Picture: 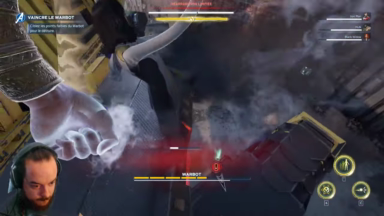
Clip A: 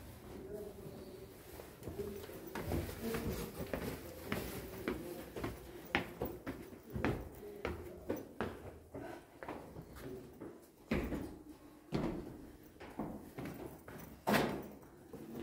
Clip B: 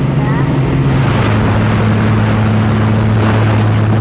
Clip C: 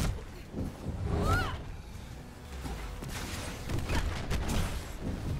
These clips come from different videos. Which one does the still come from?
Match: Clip C